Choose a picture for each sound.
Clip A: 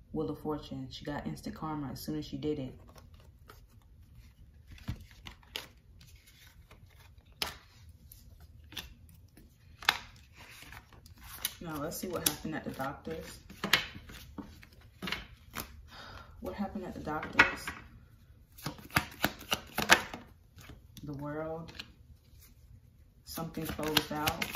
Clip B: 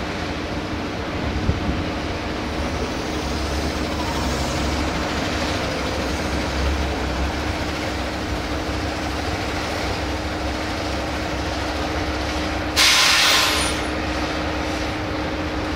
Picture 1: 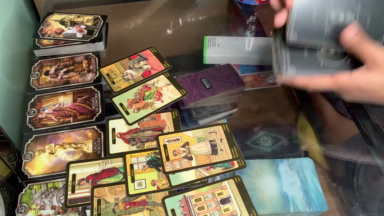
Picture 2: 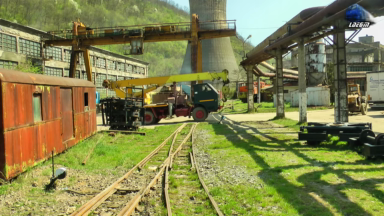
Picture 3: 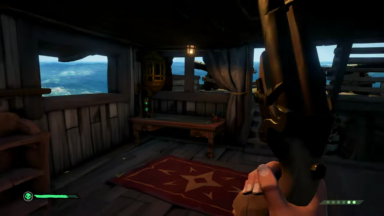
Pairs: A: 1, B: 2